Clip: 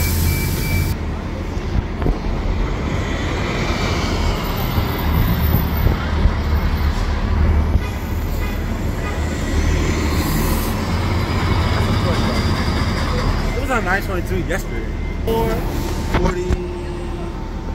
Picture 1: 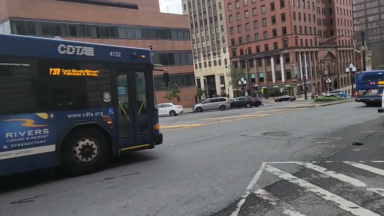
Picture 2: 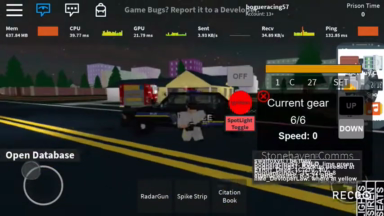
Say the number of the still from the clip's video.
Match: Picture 1